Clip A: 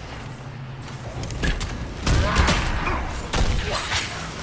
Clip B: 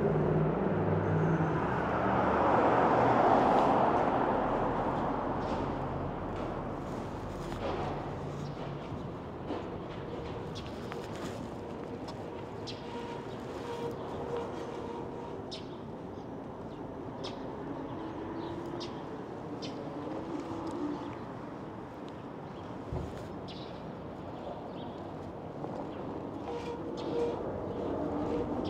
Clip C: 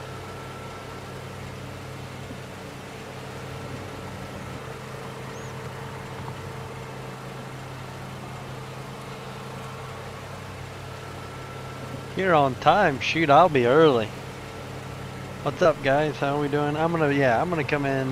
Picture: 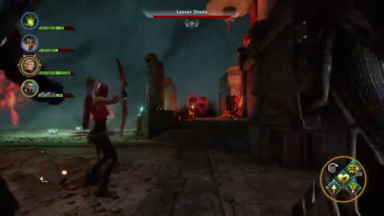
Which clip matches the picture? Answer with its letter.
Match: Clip A